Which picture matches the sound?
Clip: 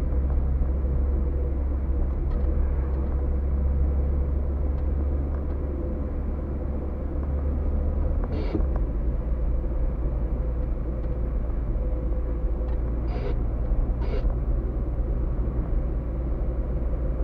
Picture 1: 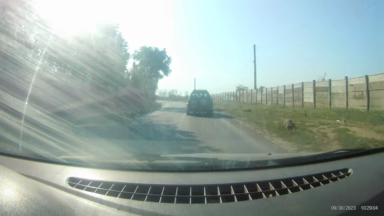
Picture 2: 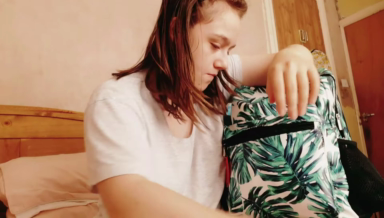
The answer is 1